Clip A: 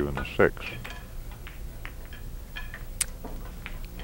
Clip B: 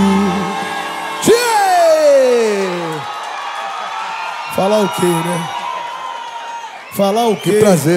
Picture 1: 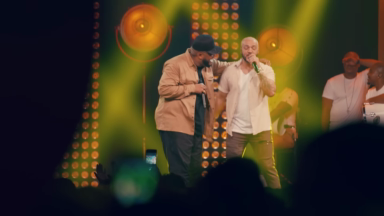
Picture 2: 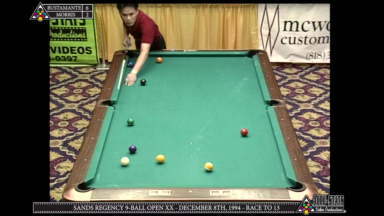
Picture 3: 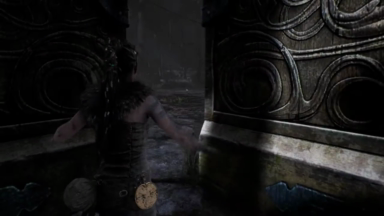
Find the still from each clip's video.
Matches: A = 2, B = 1